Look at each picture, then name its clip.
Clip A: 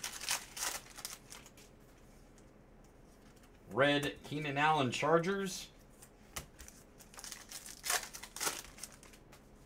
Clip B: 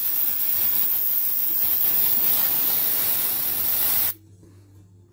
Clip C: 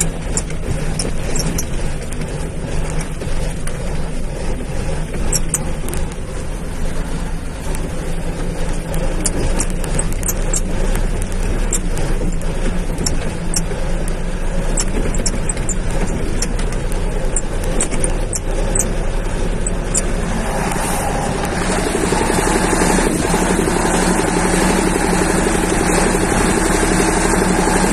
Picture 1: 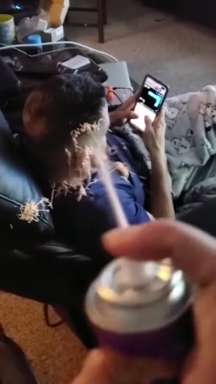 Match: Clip B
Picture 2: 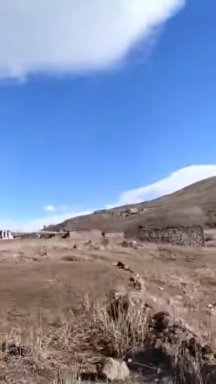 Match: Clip C